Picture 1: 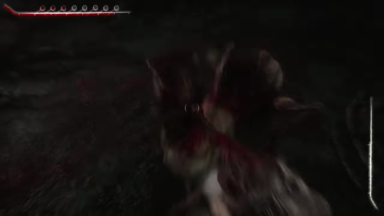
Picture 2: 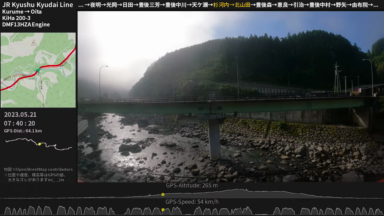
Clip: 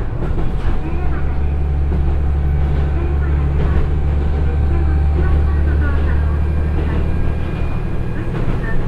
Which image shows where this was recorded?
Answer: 2